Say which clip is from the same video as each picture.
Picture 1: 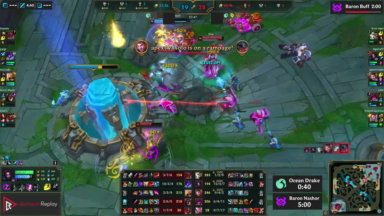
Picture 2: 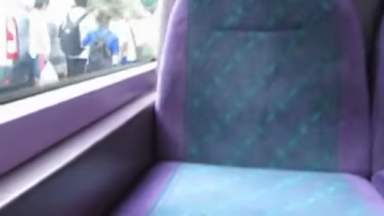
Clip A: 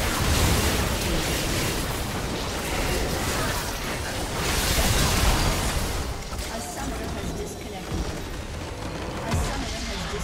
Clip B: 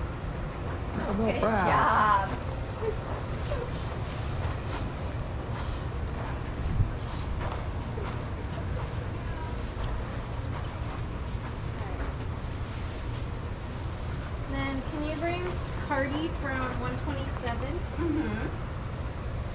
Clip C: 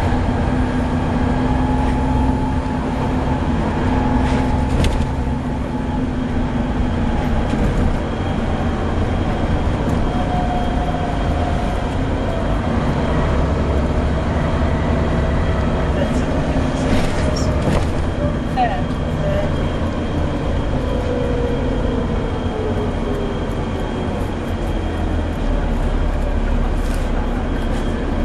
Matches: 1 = A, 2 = C